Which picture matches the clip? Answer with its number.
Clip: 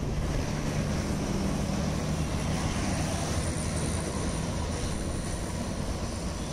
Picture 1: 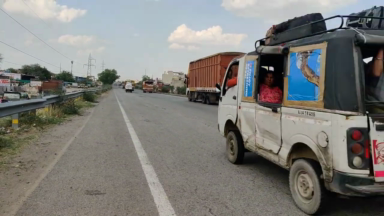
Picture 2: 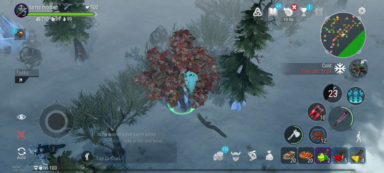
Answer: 1